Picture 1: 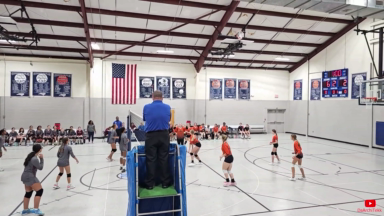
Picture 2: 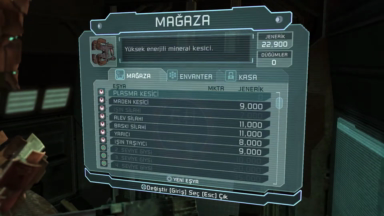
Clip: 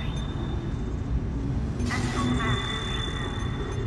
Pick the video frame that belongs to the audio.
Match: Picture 2